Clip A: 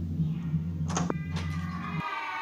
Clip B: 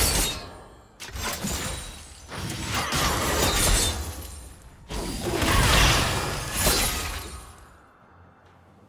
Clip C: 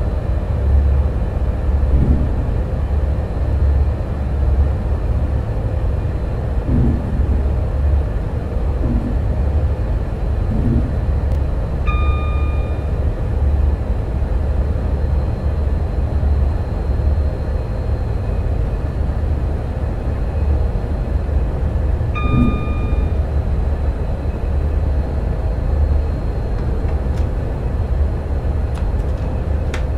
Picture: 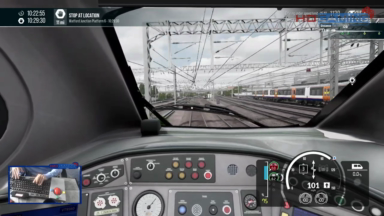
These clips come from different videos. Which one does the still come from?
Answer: C